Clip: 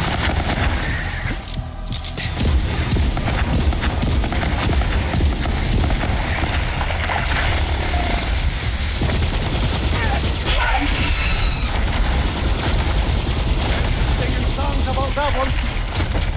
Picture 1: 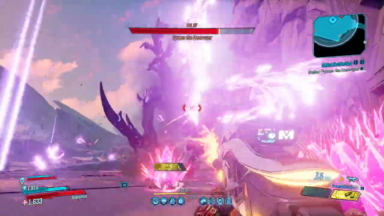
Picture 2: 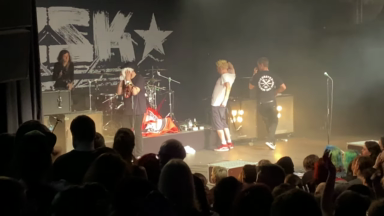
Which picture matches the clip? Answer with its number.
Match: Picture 1